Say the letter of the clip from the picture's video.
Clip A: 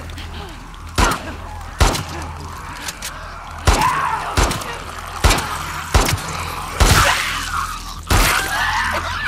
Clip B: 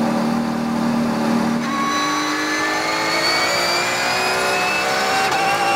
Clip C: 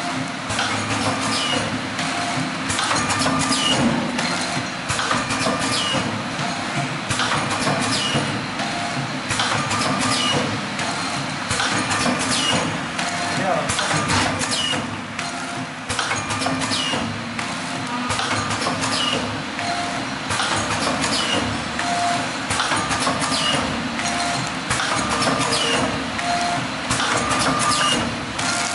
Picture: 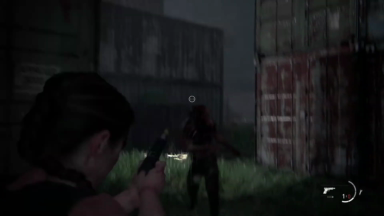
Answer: A